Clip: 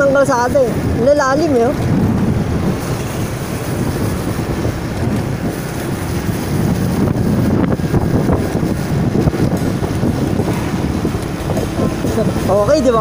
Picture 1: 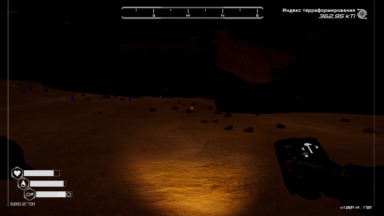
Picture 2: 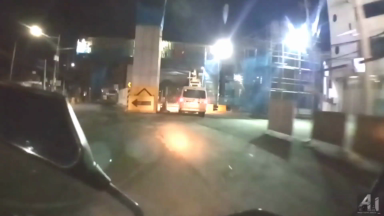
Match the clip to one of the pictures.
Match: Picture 2